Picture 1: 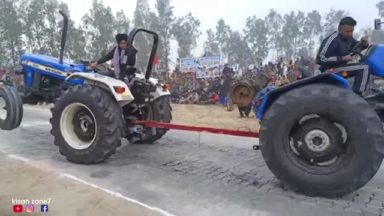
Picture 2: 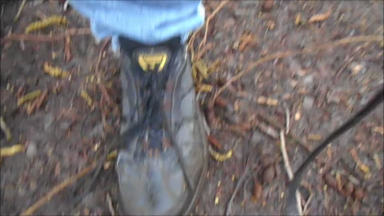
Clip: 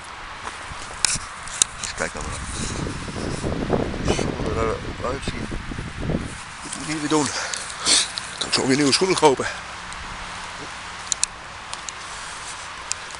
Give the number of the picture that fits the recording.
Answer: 2